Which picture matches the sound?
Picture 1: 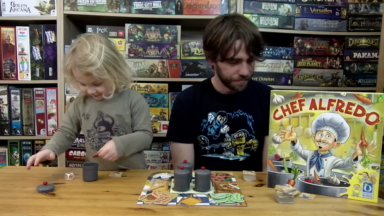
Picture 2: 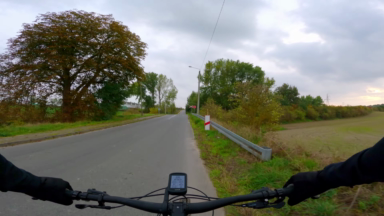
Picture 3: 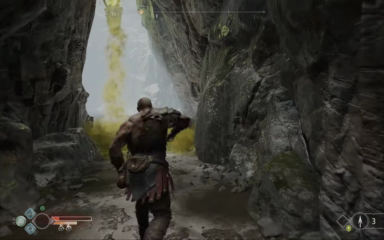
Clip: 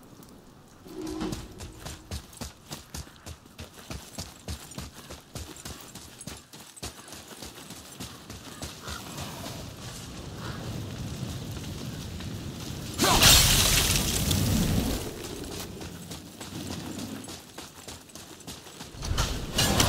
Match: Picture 3